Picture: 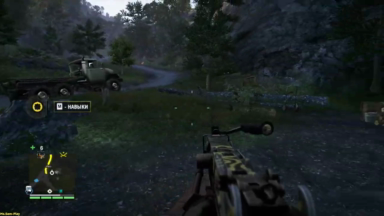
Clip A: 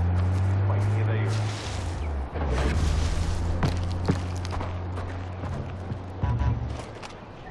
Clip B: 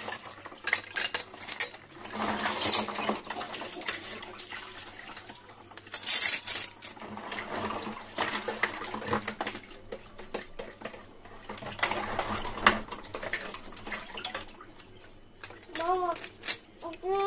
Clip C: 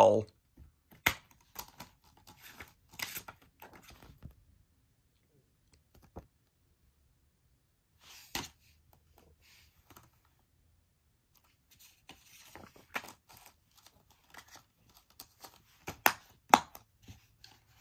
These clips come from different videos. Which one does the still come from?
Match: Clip A